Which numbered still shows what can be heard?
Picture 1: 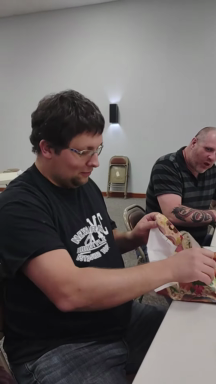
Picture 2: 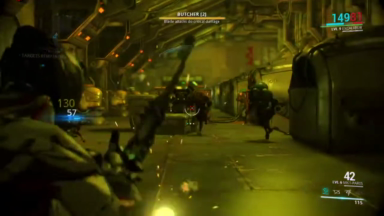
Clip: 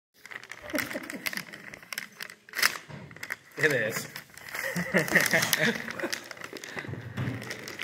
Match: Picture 1